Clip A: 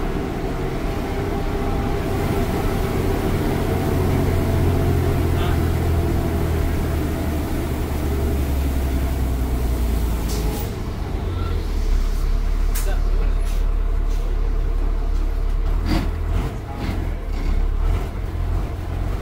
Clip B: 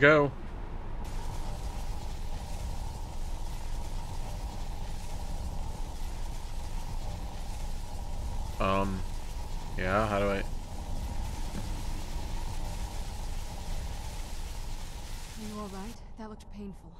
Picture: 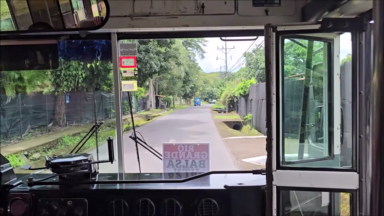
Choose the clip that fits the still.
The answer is A